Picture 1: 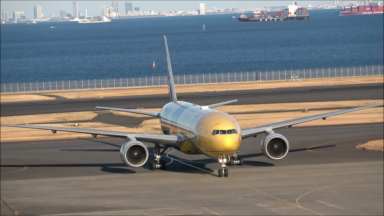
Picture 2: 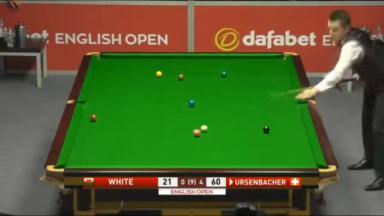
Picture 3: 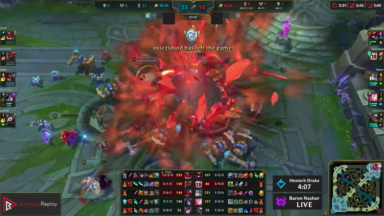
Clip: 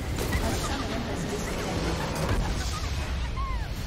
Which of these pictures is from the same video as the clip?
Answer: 3